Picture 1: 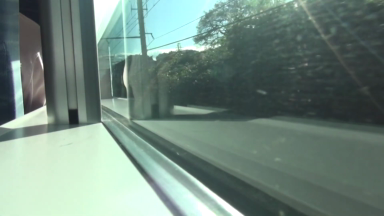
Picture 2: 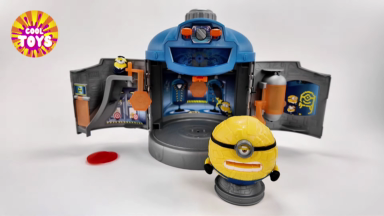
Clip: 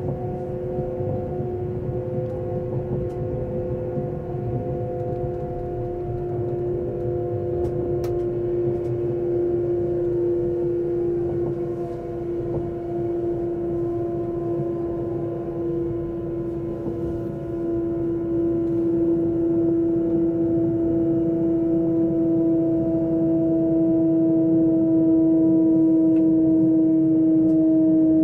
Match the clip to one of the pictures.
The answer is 1